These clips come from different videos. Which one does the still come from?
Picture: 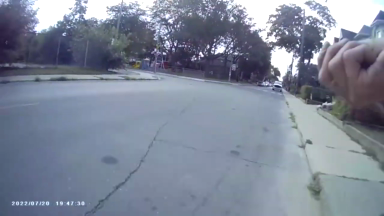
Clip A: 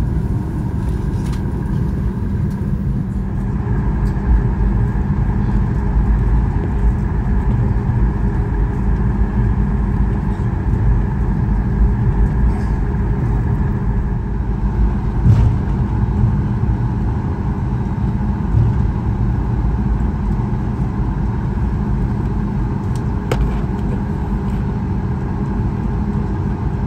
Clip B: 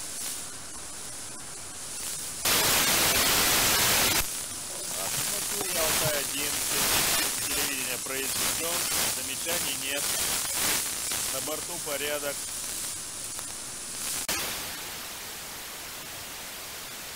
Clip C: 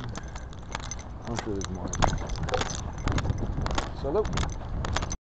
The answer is C